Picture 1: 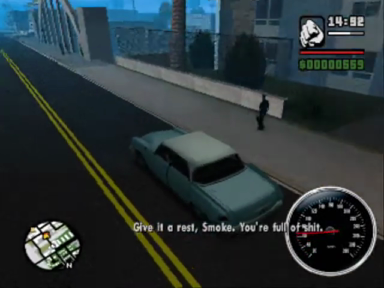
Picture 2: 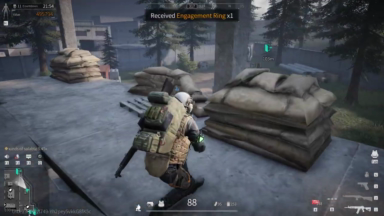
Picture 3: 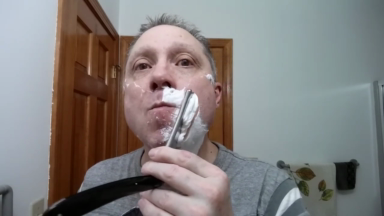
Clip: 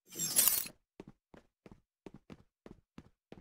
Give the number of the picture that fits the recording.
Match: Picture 2